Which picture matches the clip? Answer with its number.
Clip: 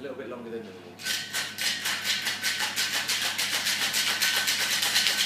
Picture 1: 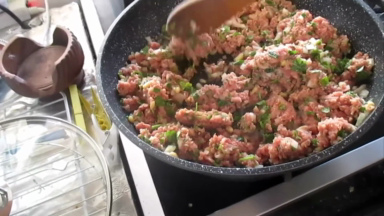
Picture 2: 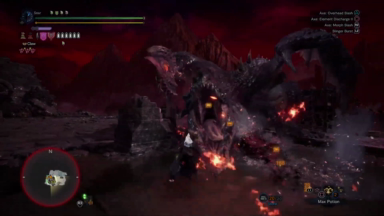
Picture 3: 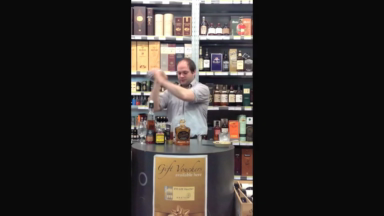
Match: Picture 3